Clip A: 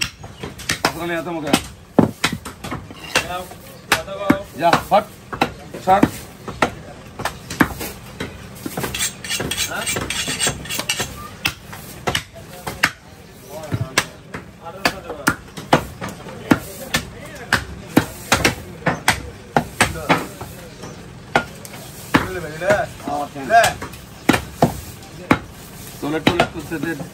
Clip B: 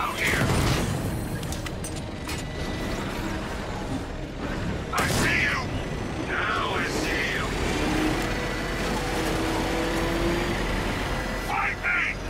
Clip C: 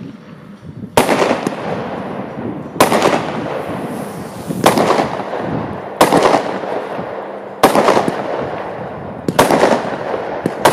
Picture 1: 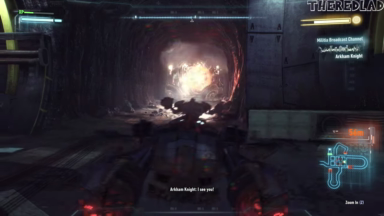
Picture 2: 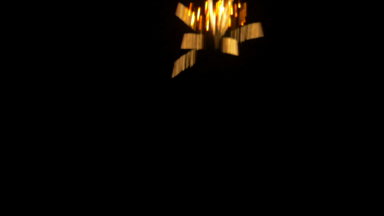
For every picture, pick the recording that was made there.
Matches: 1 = B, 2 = C